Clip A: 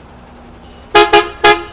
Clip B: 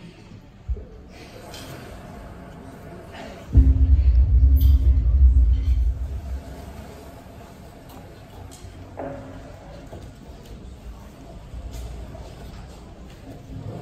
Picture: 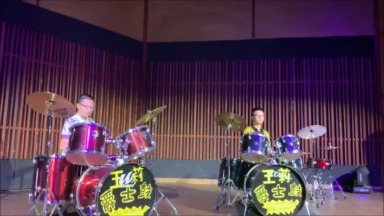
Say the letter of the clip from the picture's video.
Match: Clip B